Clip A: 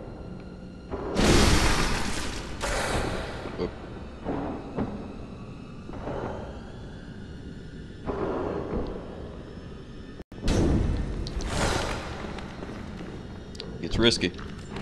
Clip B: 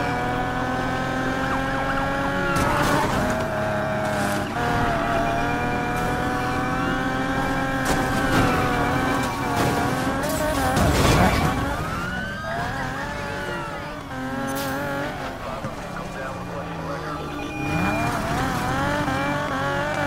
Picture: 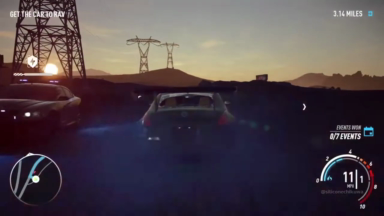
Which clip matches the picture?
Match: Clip B